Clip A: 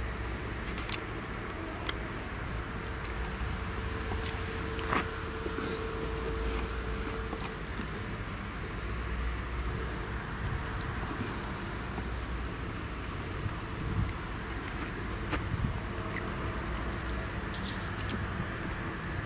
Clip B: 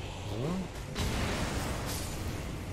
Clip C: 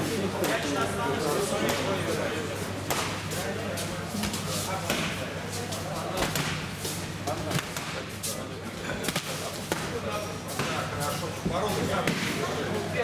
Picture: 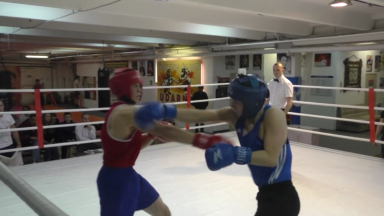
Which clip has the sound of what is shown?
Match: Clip C